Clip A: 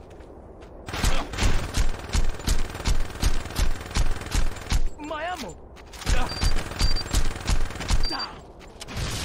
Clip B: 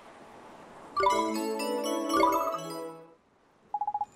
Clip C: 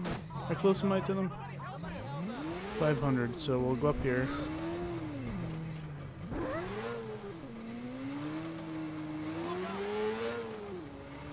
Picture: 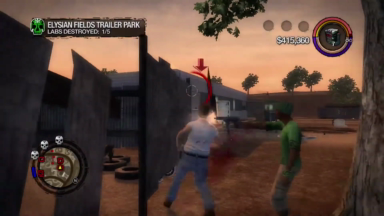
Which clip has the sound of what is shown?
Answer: A